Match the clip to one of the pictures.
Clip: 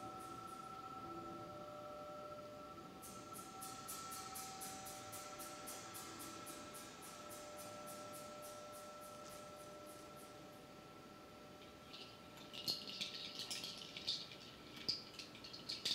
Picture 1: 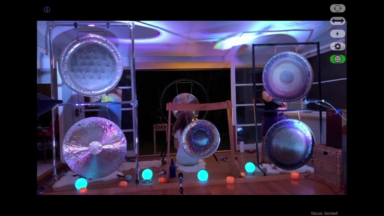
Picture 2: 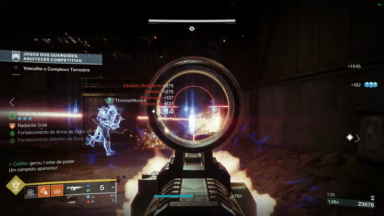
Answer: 1